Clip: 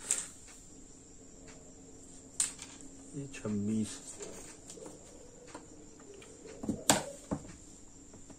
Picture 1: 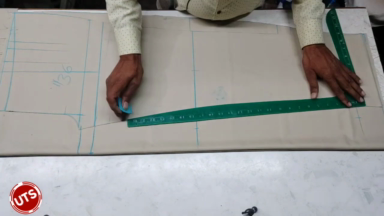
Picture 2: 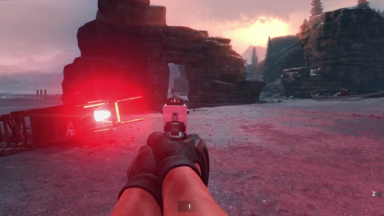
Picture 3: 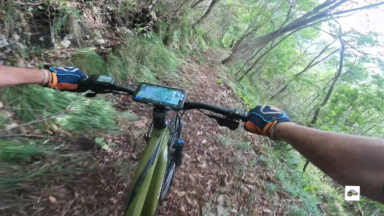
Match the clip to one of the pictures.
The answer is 1